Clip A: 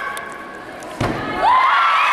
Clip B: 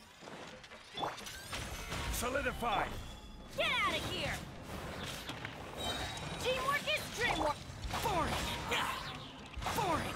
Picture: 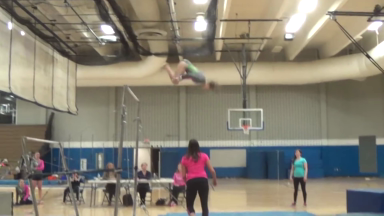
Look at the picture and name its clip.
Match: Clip A